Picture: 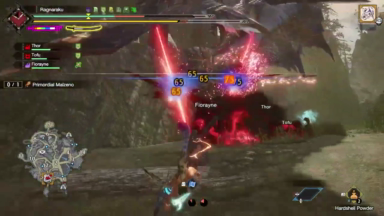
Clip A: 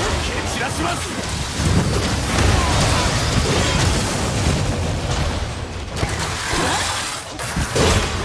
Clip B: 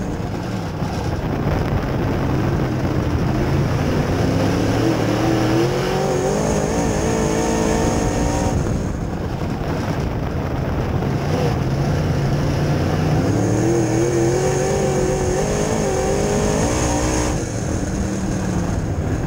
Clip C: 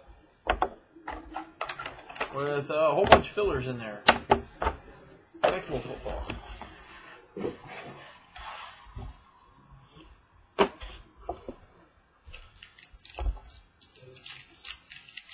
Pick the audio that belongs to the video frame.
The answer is A